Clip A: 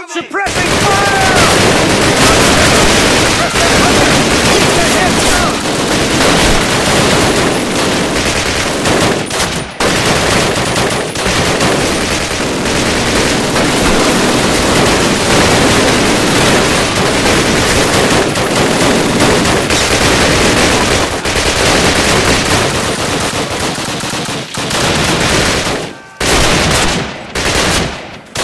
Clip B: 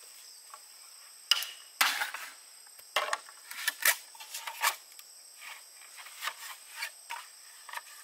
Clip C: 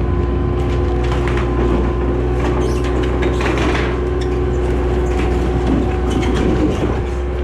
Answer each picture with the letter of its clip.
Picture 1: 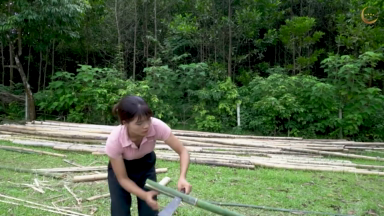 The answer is B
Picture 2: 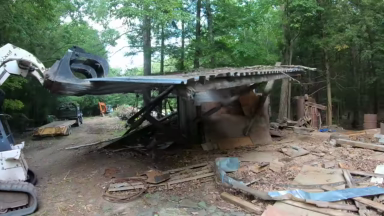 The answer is C